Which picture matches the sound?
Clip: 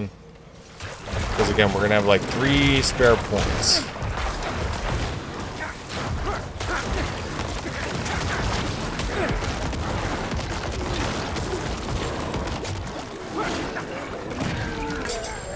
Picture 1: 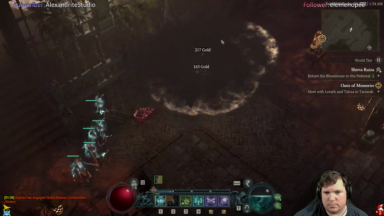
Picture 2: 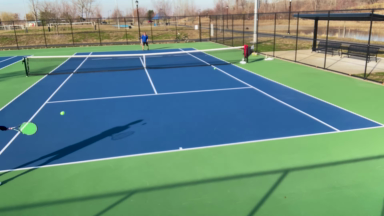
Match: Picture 1